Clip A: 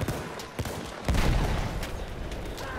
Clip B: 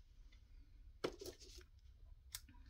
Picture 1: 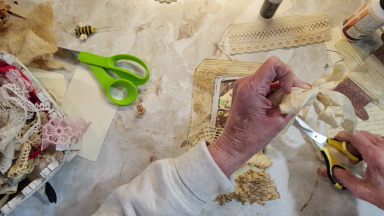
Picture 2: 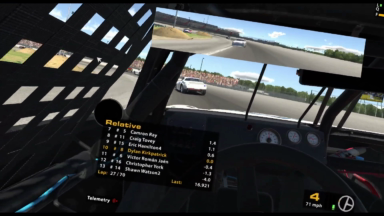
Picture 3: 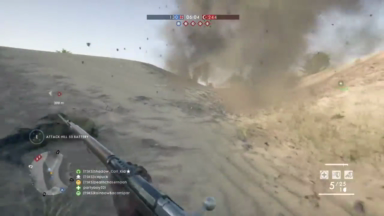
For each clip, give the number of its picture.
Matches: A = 3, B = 1